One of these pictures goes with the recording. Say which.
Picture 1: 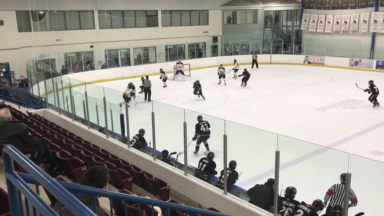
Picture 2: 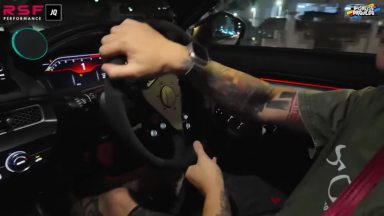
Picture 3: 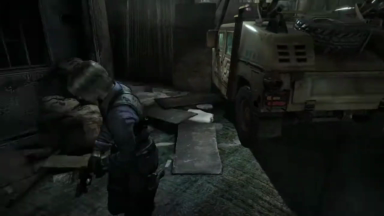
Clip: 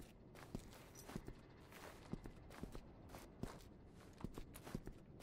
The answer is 3